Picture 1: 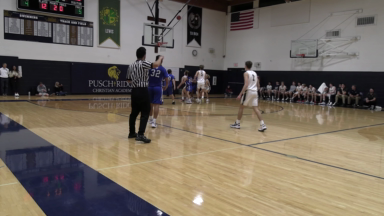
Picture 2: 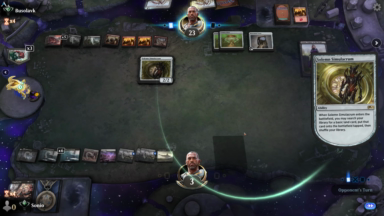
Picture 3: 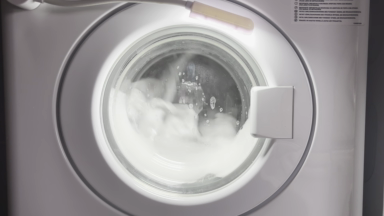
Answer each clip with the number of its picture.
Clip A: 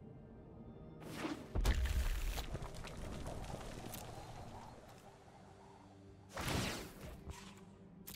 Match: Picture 2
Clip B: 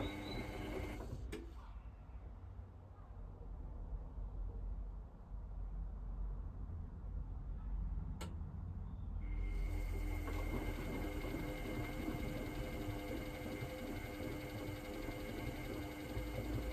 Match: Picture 3